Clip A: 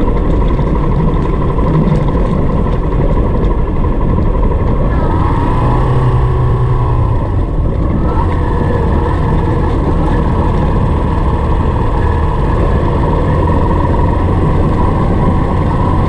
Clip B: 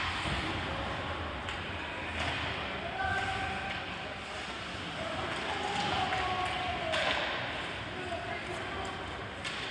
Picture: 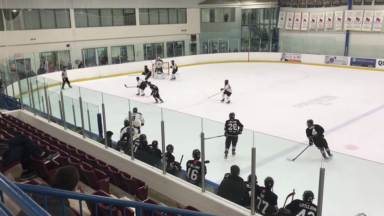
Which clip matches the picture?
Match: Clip B